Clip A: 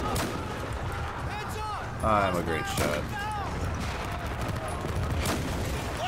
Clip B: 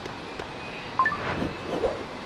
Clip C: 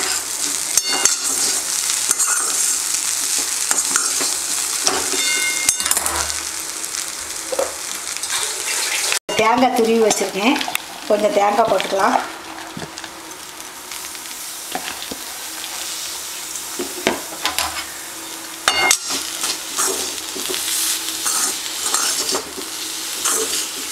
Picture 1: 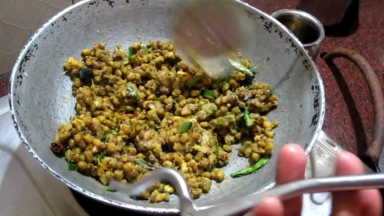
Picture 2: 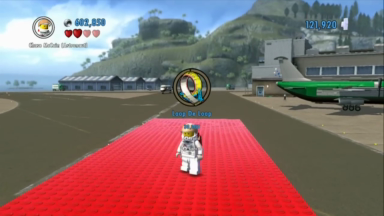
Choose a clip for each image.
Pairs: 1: C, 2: B